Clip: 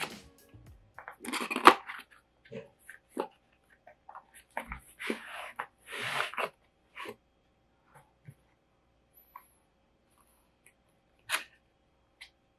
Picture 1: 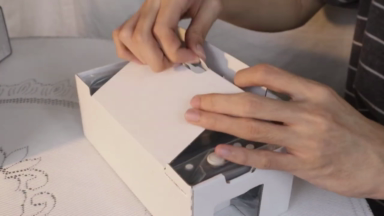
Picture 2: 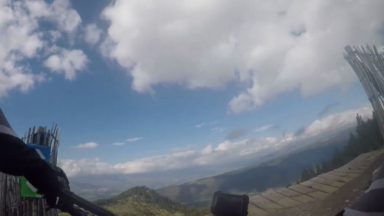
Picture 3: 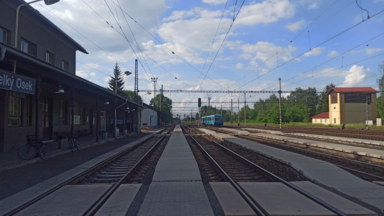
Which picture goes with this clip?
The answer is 1